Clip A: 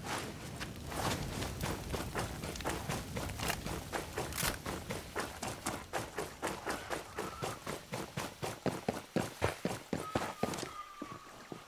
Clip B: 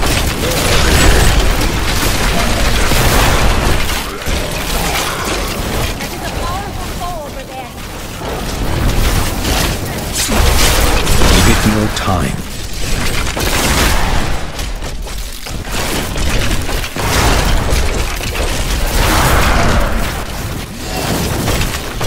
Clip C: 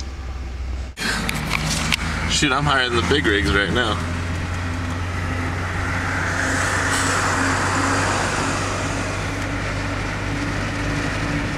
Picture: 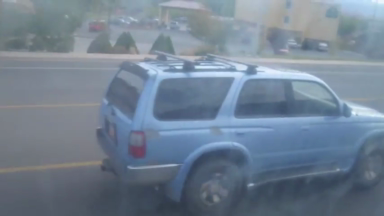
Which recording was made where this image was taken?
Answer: C